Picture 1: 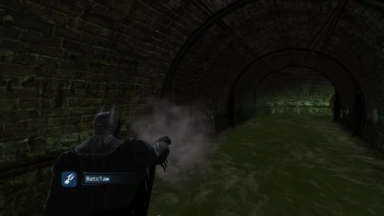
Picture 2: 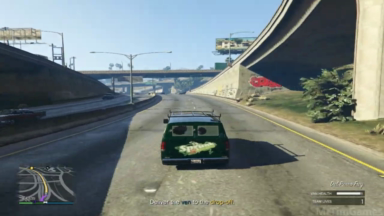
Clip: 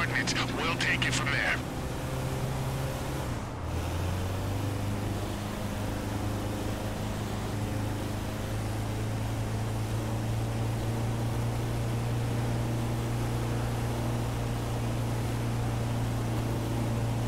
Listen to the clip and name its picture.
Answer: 2